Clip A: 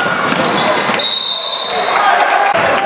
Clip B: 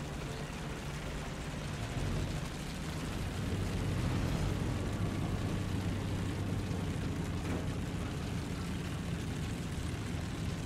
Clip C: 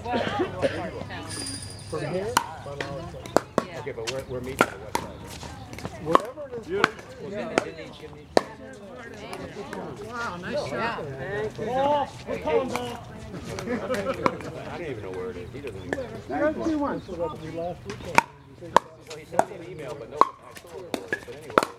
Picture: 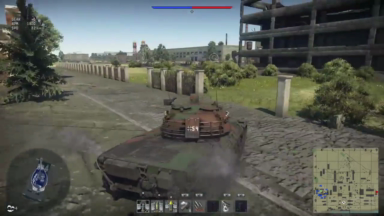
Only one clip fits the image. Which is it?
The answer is B